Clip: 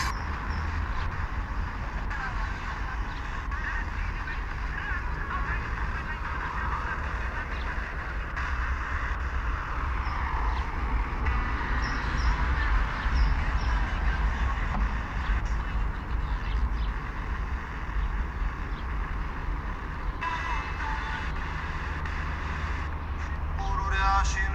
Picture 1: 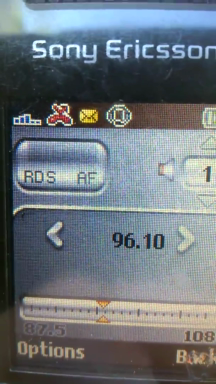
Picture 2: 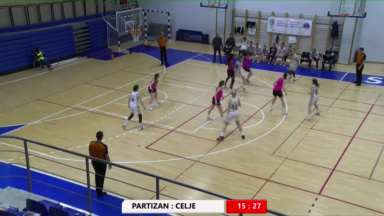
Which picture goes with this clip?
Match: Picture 1